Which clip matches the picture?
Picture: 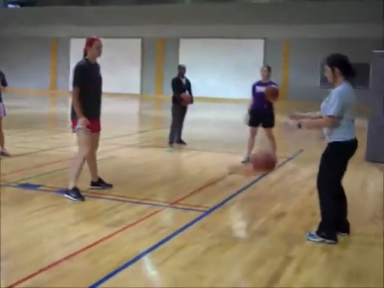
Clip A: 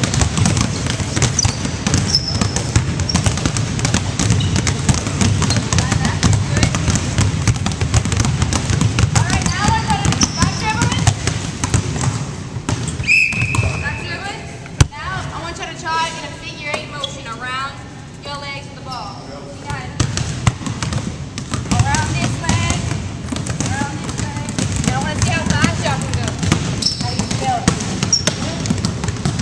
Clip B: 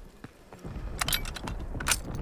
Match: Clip A